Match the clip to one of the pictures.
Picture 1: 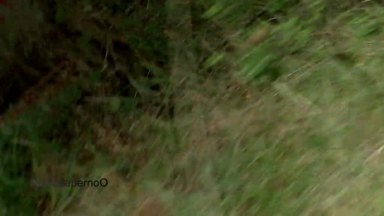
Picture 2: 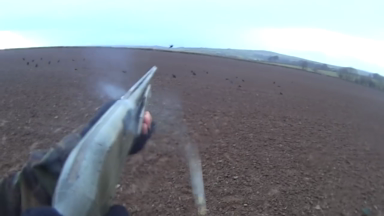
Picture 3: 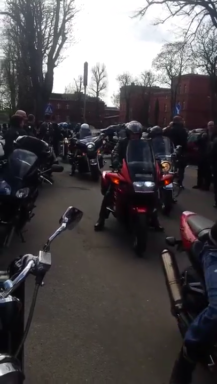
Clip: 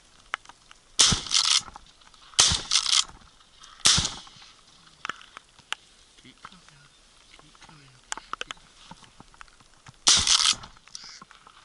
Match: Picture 2